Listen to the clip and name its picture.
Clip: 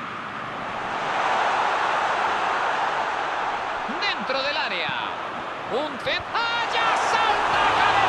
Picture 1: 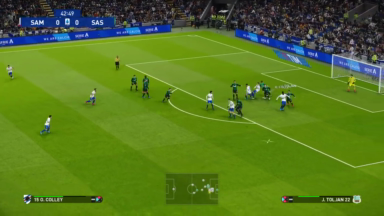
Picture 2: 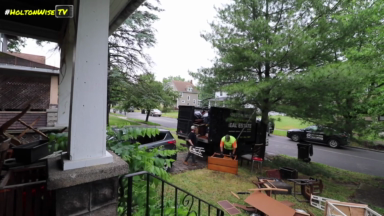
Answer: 1